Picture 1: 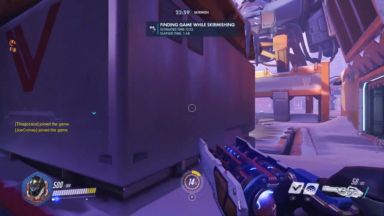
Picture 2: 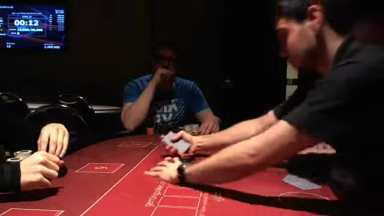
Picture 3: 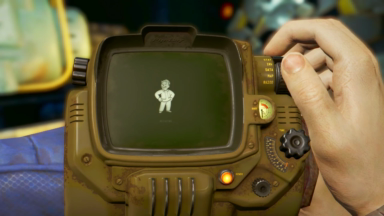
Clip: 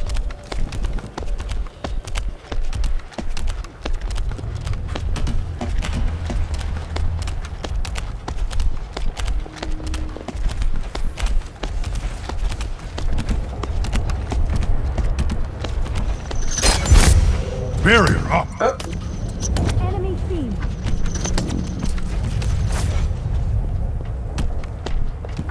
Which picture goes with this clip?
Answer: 1